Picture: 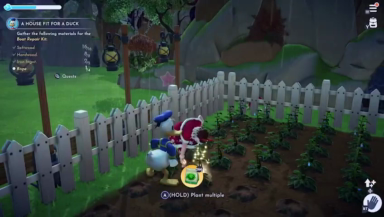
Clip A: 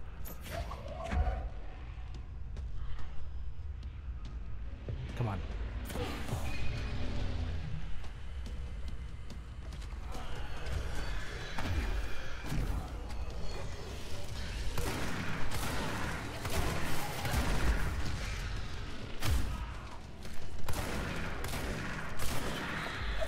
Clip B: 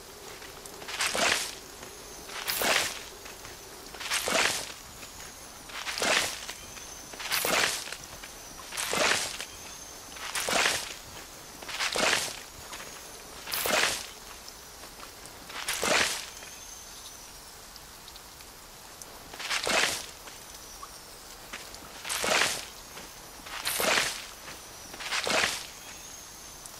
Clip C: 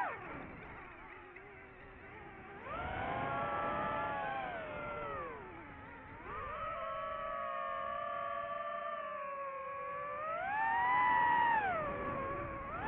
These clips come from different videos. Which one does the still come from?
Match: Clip B